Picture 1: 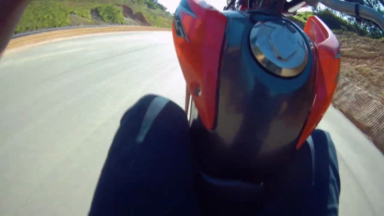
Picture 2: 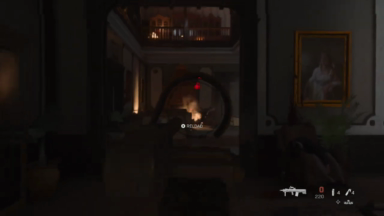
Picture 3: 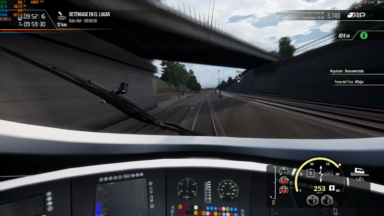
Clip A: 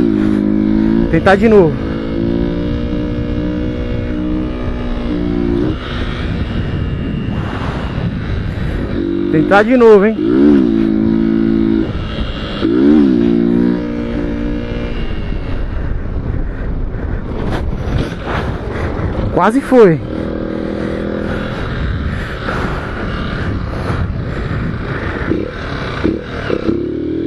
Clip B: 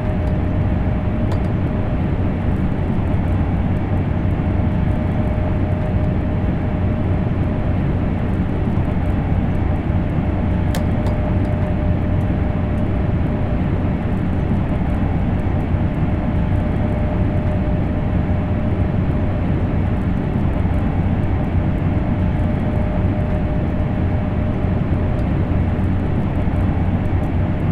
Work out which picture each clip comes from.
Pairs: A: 1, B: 3